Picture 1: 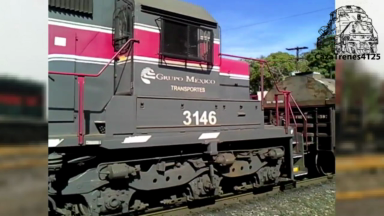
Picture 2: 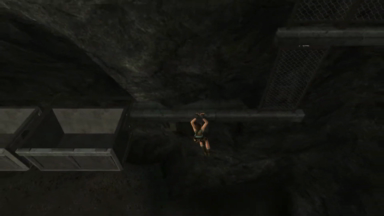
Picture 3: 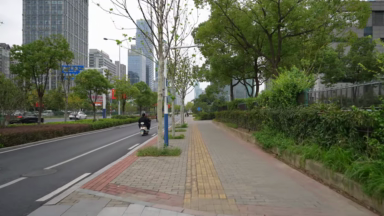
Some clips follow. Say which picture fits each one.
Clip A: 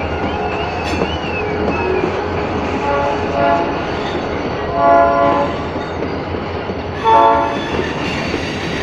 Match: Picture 1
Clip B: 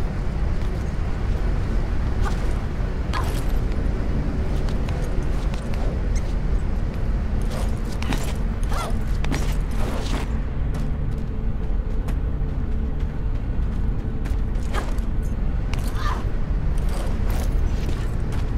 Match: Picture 2